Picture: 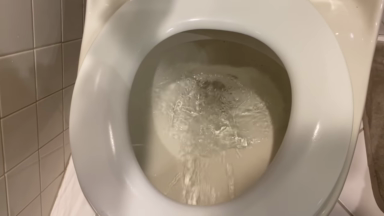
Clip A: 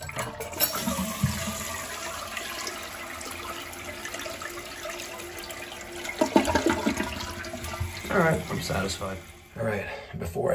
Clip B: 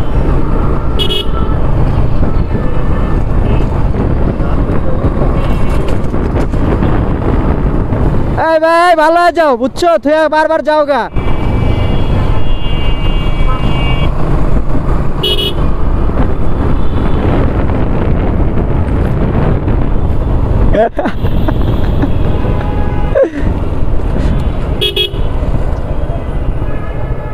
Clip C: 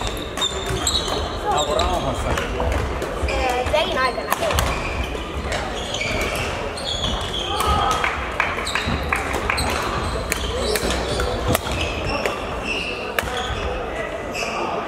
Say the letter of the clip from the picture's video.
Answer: A